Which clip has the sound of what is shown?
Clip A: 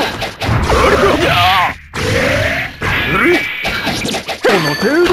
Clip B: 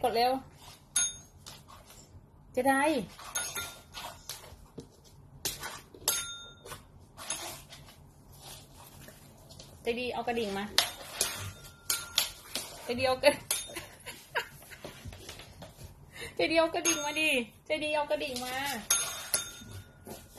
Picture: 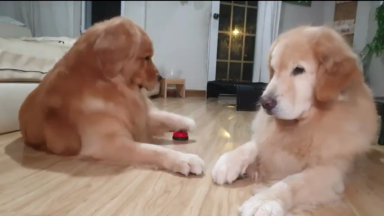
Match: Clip B